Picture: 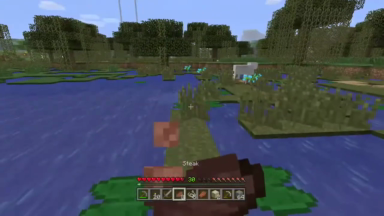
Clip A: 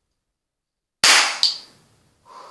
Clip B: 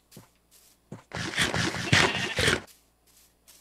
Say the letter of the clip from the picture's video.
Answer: B